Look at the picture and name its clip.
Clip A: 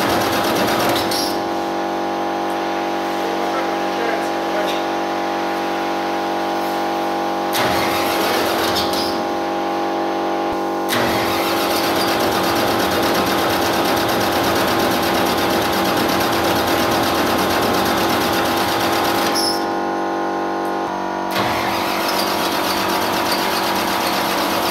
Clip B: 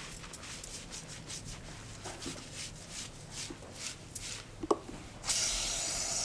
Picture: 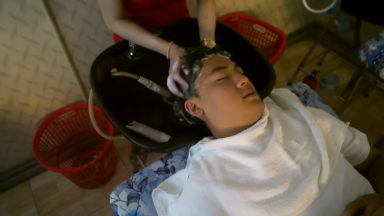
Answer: B